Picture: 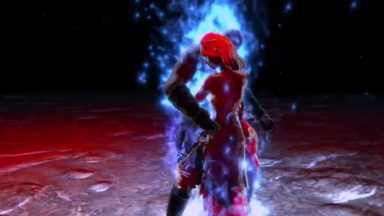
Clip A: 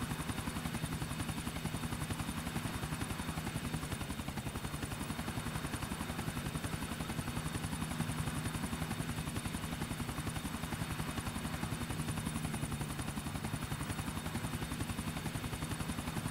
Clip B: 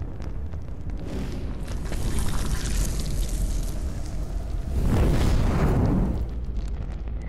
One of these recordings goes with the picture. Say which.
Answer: B